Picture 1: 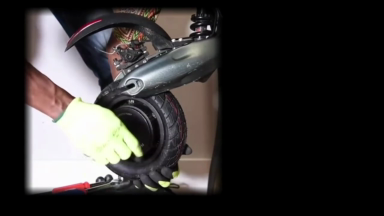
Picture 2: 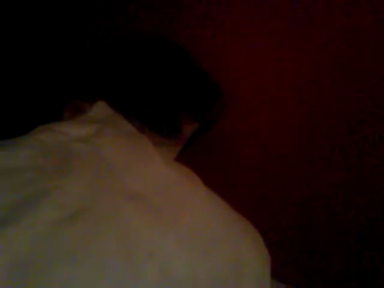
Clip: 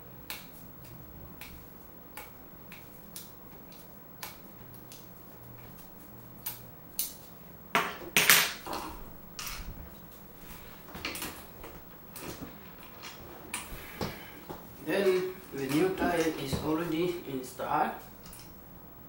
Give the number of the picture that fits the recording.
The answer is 1